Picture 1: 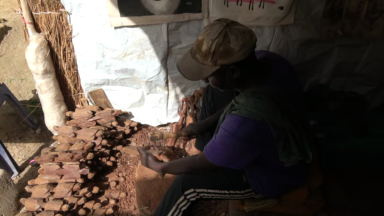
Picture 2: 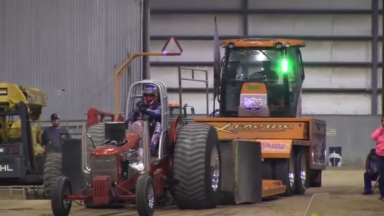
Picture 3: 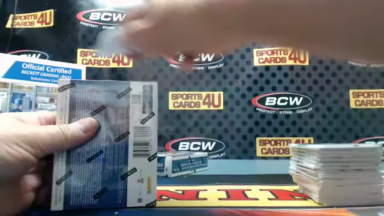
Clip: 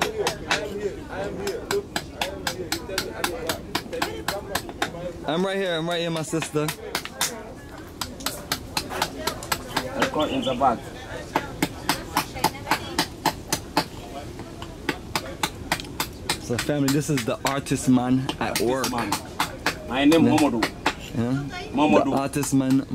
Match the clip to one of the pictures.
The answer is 1